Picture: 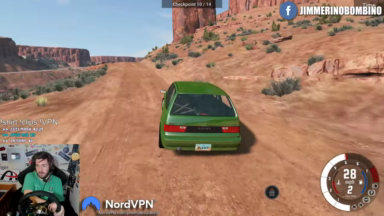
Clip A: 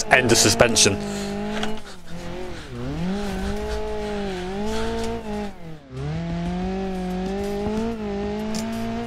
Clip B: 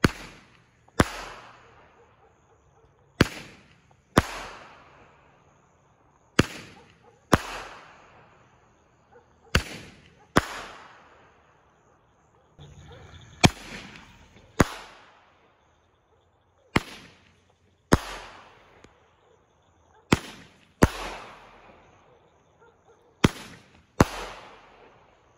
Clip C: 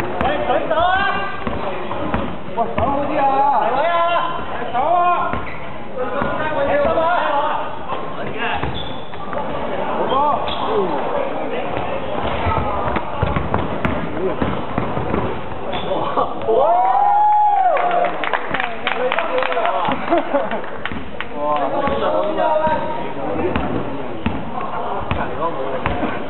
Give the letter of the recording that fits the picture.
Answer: A